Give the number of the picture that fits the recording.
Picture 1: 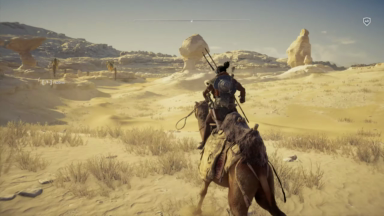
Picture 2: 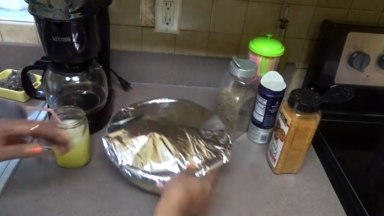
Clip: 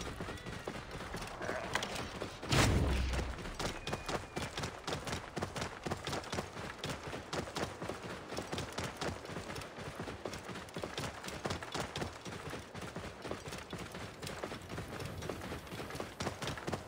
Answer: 1